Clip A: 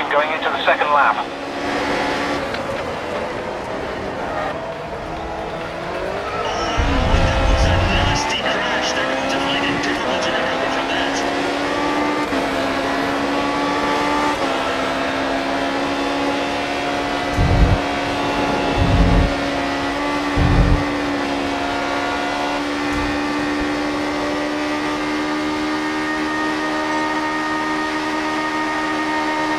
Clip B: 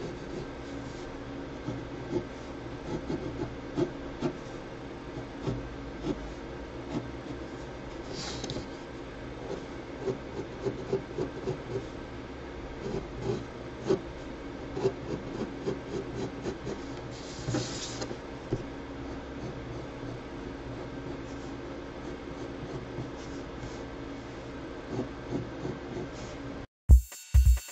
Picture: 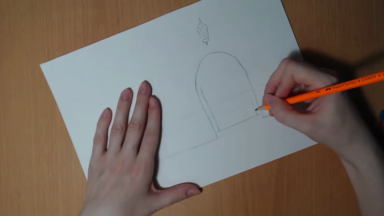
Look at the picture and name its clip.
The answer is B